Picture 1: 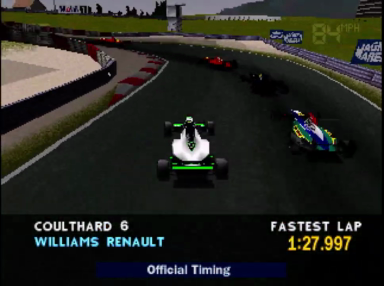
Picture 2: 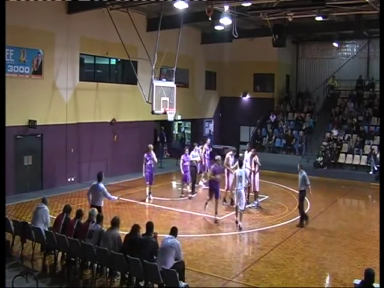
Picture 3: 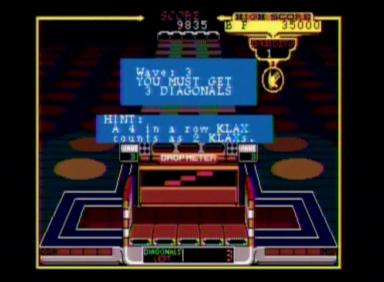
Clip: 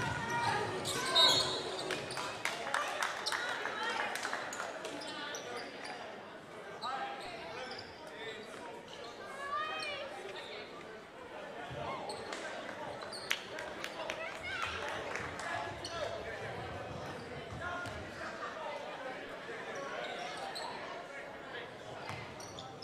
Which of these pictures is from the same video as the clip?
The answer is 2